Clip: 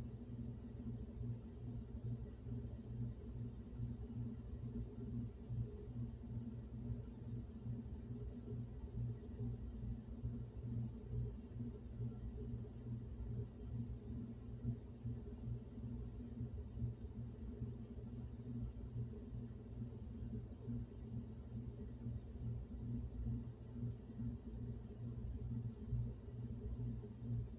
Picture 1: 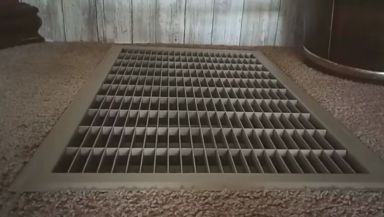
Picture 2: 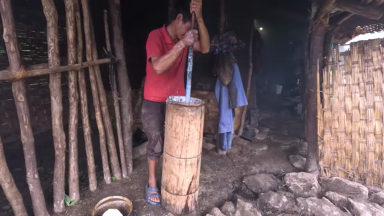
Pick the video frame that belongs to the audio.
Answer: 1